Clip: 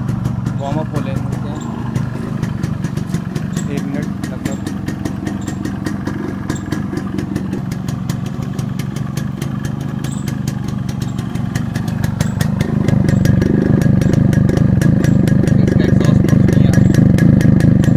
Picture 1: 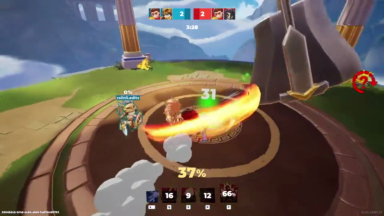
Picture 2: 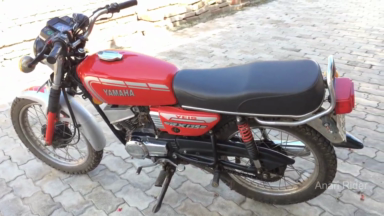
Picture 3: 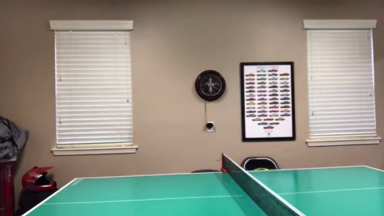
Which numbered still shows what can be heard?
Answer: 2